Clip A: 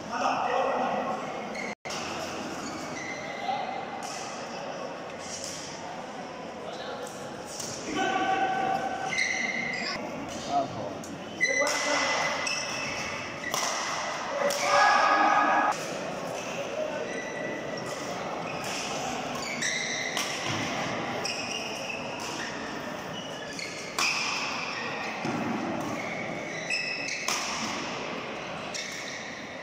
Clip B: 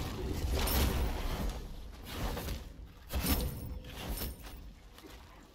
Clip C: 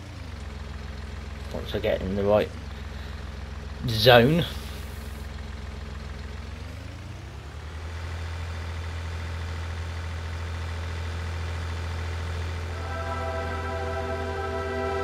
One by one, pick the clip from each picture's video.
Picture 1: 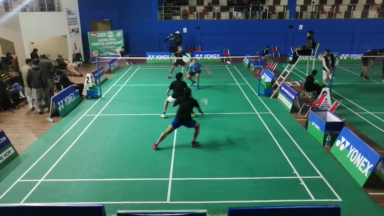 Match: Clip A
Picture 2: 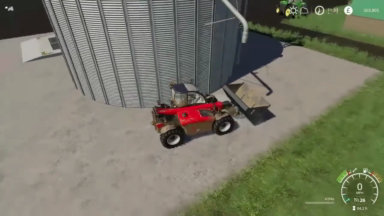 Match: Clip C